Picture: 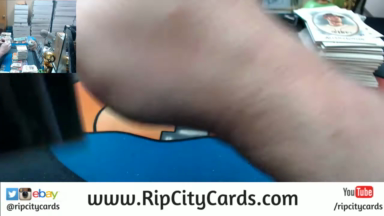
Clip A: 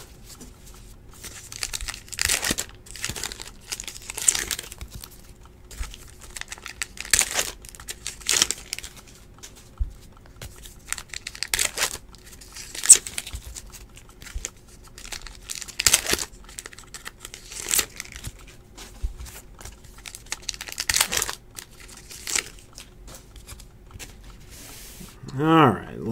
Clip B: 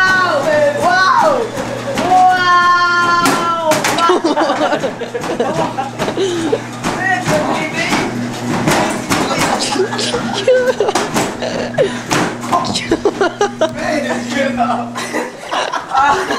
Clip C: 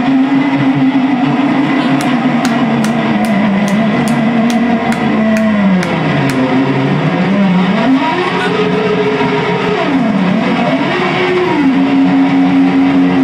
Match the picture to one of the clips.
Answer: A